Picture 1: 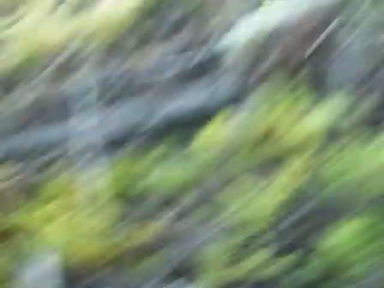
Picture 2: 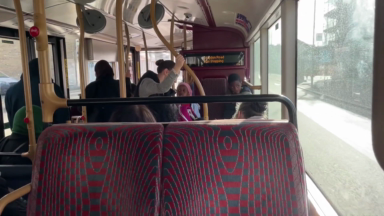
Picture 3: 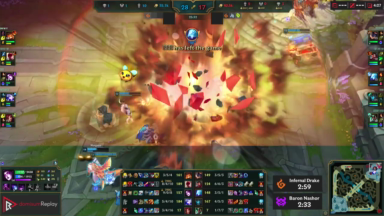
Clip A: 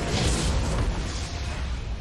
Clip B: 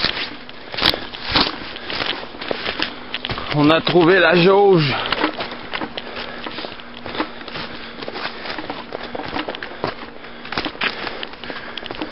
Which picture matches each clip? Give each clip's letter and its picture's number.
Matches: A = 3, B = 1